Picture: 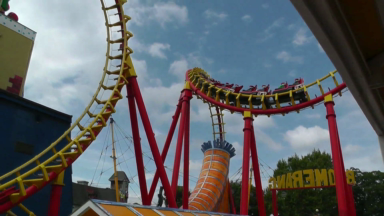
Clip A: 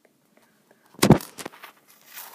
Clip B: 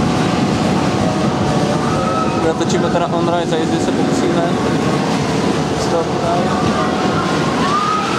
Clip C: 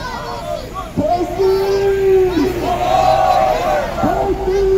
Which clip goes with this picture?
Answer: B